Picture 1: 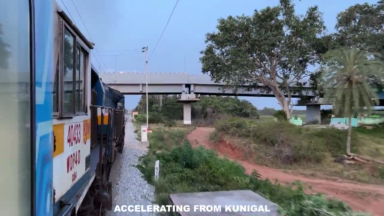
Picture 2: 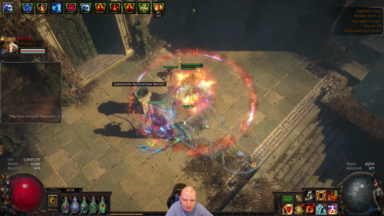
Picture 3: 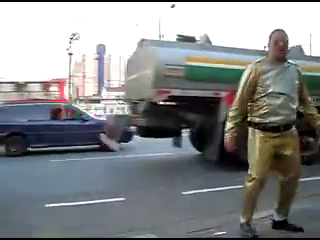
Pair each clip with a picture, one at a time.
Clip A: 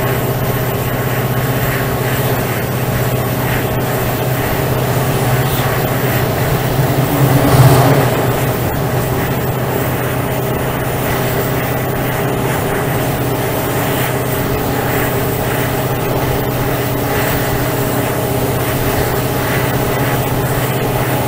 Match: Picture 1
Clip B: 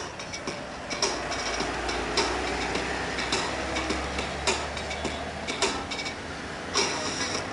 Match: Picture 3